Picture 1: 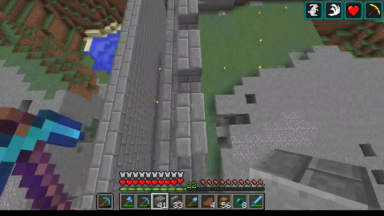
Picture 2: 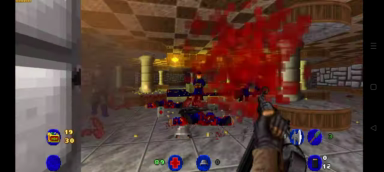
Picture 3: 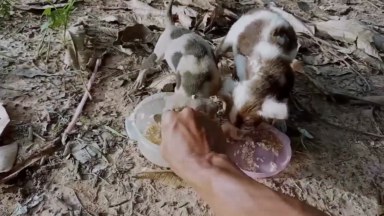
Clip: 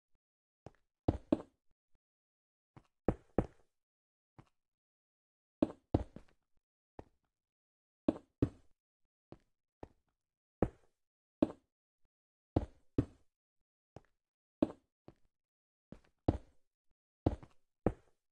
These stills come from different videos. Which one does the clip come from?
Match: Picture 1